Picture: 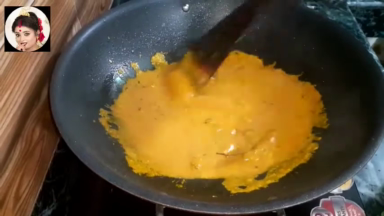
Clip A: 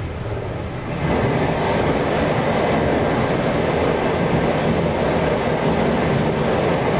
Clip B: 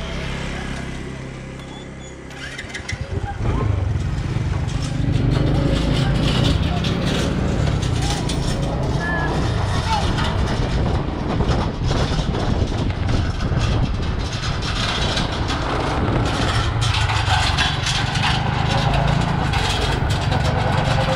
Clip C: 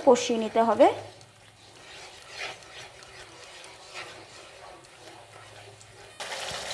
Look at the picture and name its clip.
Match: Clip C